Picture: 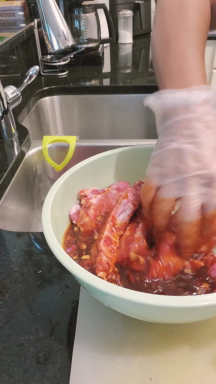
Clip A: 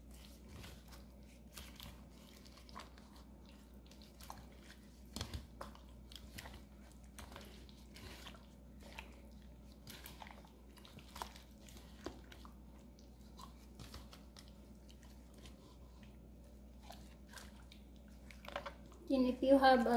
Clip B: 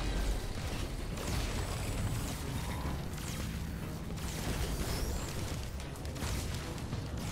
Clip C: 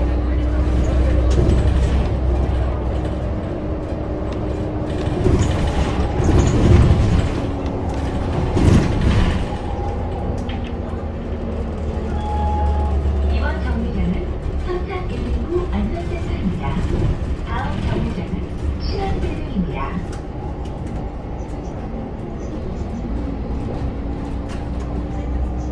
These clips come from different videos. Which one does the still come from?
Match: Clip A